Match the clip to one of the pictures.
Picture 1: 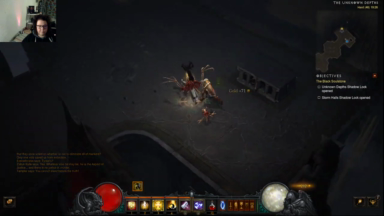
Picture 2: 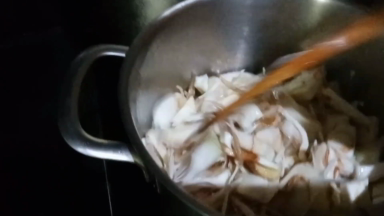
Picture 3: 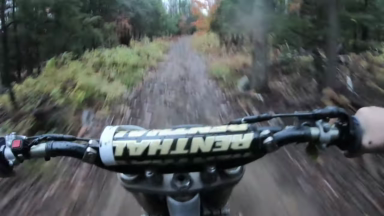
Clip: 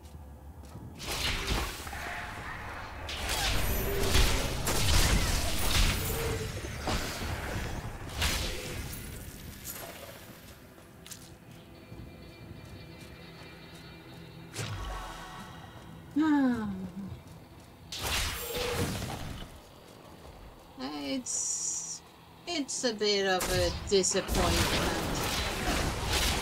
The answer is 1